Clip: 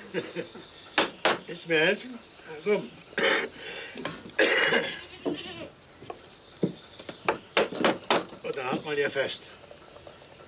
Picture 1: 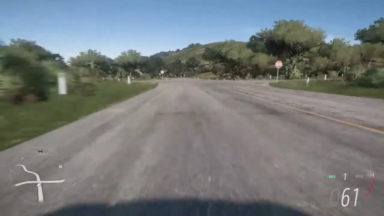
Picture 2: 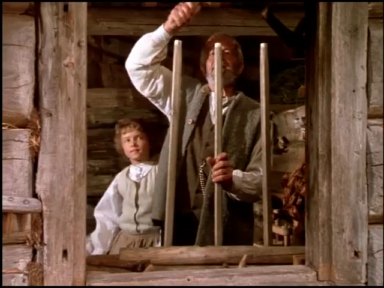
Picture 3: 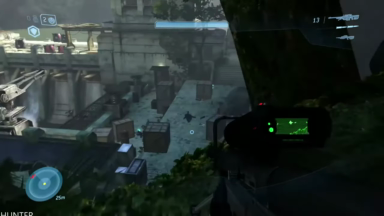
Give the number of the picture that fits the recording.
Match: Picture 2